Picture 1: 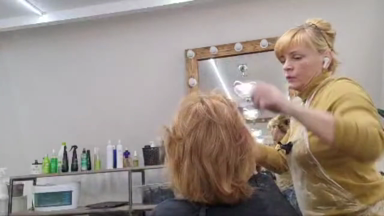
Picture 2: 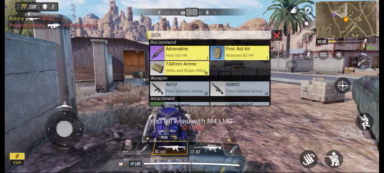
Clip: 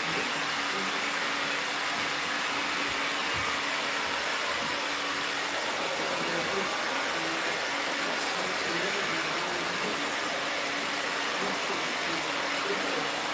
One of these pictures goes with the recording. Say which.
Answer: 1